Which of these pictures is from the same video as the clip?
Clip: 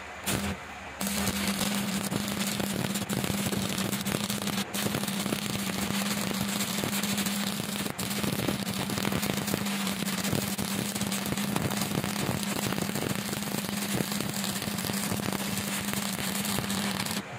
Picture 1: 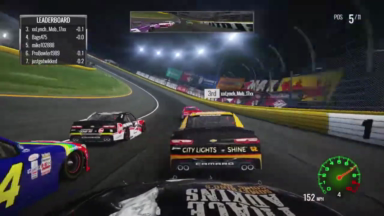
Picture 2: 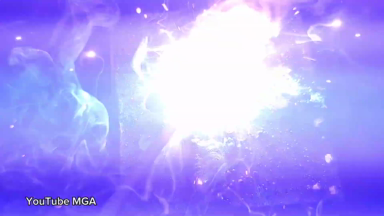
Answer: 2